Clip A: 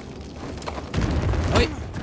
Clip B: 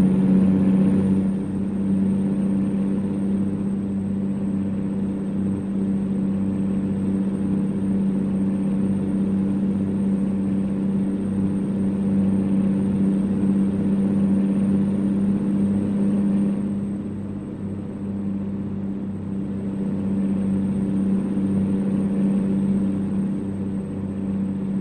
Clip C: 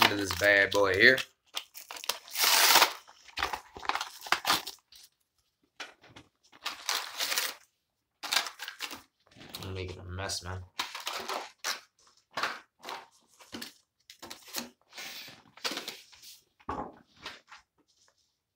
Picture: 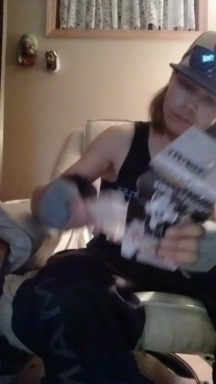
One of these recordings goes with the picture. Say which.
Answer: C